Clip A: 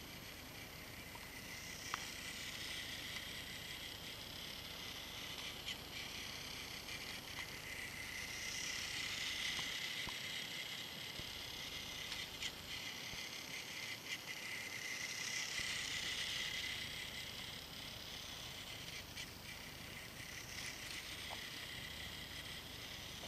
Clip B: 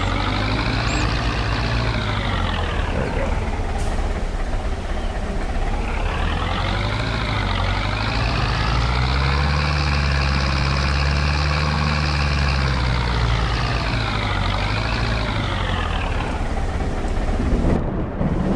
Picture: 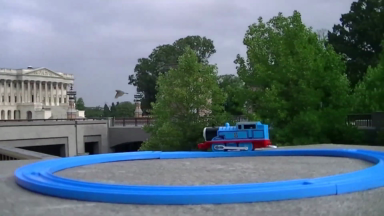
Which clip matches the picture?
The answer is A